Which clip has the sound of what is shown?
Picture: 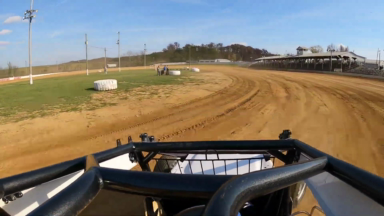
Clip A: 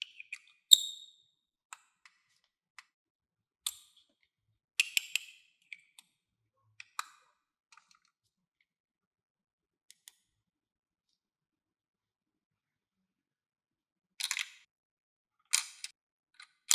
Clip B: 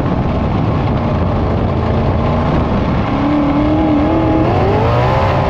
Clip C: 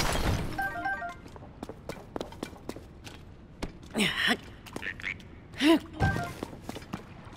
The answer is B